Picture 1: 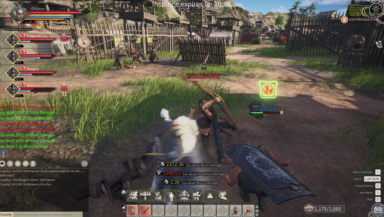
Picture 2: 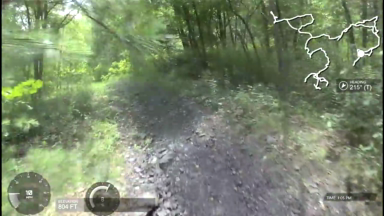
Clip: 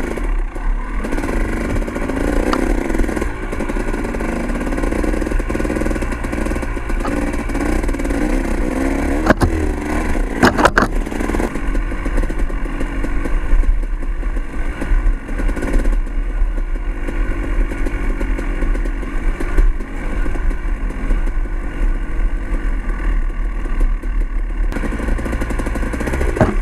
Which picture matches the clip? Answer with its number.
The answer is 2